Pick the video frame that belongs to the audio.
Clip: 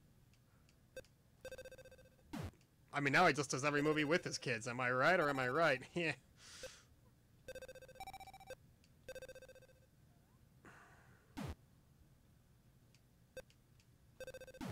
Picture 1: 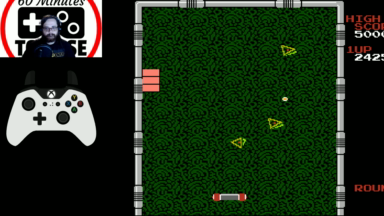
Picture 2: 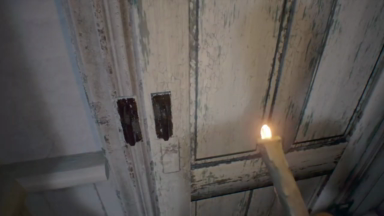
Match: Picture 1